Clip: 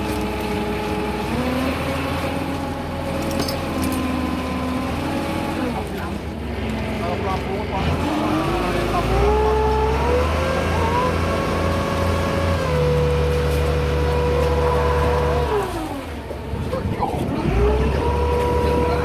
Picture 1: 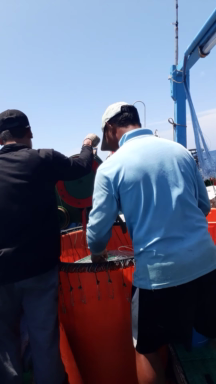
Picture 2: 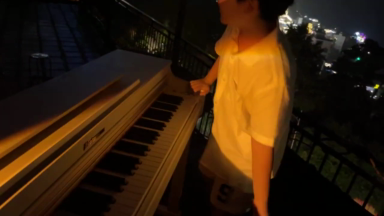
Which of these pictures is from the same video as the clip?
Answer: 1